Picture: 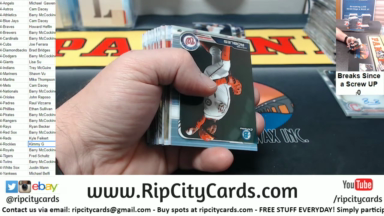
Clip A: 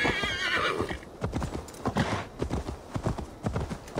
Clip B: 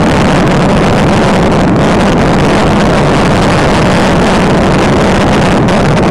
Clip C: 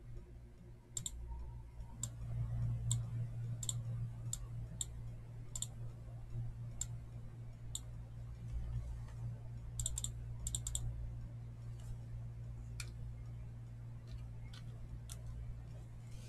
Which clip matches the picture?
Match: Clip C